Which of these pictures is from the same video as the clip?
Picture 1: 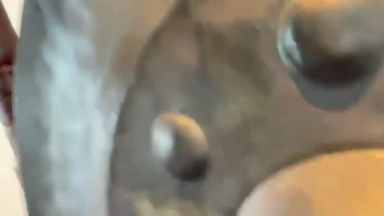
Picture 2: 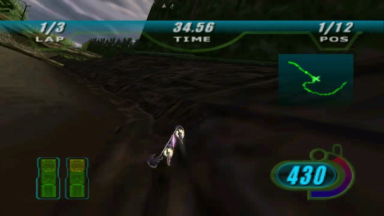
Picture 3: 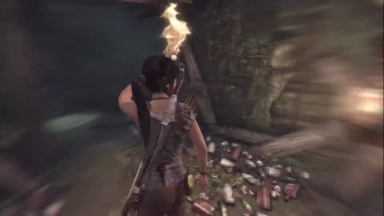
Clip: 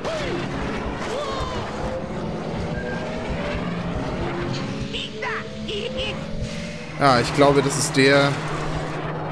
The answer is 2